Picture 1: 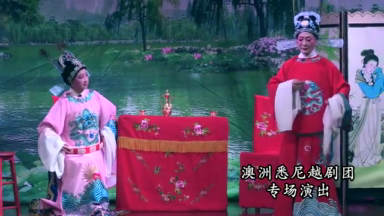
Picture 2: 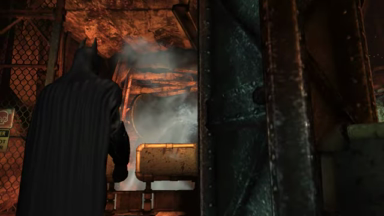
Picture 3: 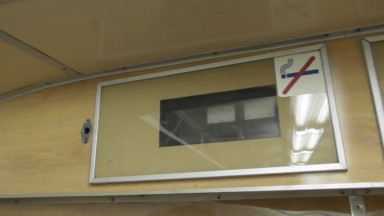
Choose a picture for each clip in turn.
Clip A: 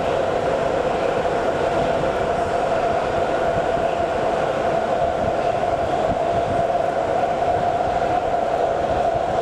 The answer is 3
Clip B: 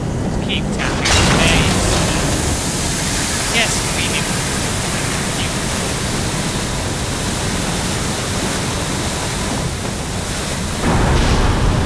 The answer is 2